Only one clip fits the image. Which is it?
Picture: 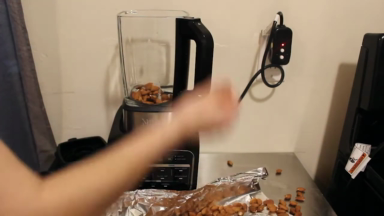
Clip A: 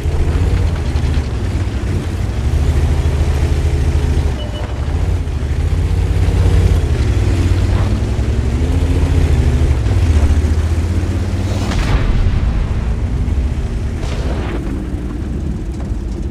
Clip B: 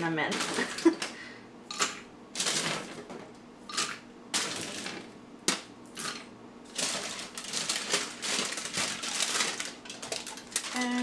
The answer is B